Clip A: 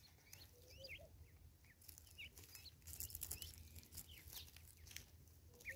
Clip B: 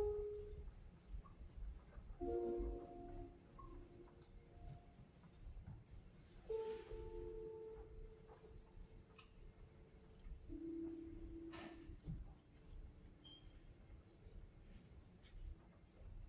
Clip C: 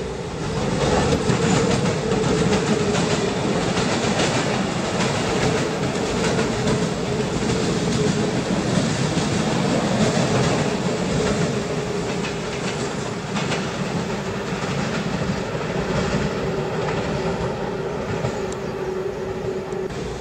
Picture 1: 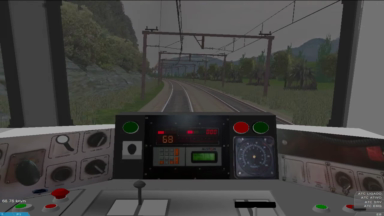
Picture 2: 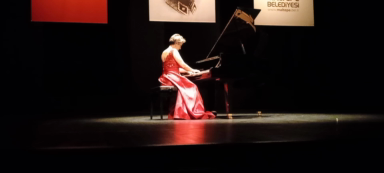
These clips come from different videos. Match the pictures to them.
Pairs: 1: C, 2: B